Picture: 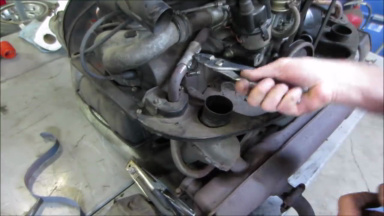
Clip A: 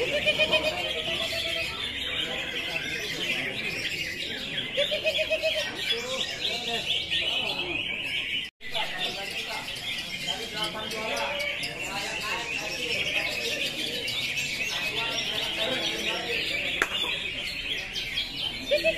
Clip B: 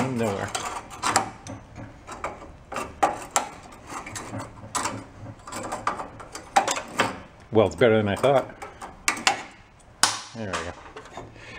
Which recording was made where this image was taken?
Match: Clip B